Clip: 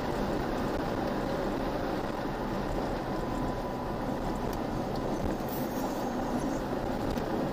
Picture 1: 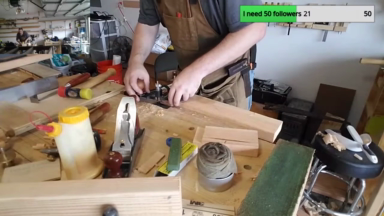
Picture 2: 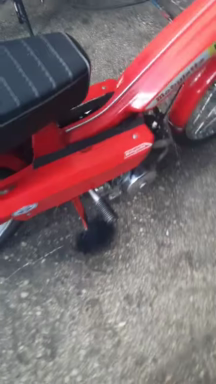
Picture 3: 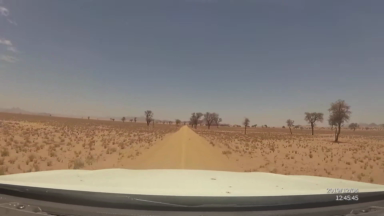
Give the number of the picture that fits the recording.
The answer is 3